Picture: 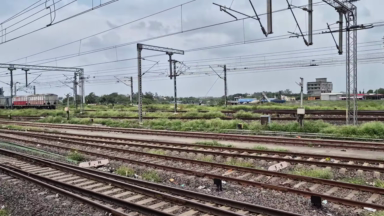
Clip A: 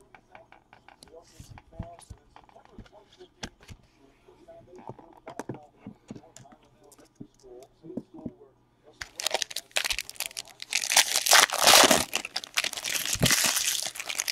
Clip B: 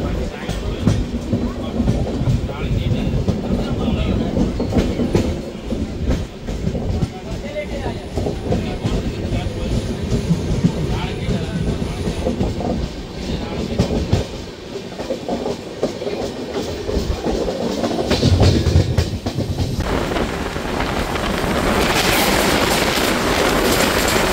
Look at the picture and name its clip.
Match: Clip B